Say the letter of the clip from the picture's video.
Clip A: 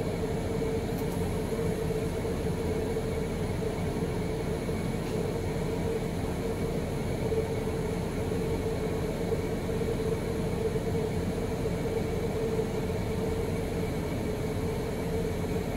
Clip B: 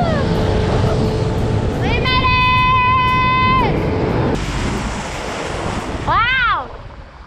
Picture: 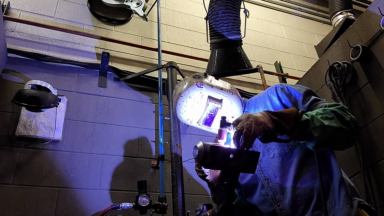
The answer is A